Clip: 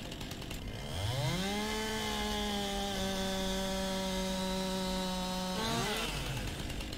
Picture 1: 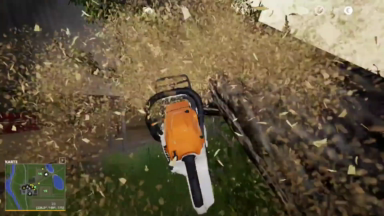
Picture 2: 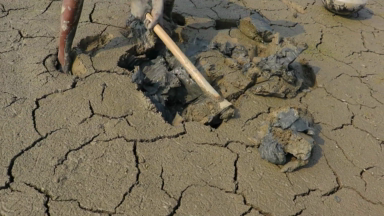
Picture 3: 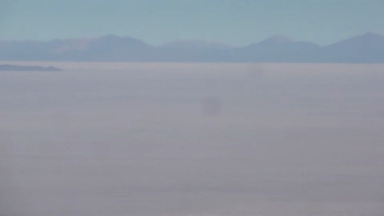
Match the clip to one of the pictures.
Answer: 1